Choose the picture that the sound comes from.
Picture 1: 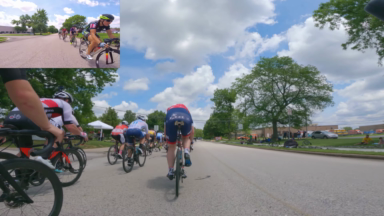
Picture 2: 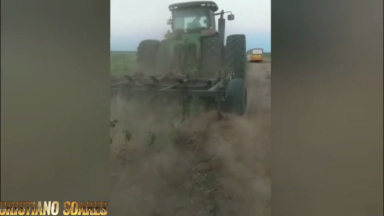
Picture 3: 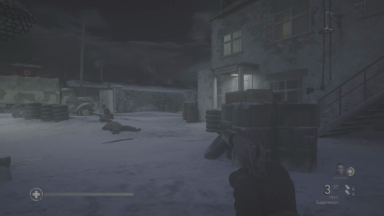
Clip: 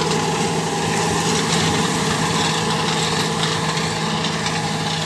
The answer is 2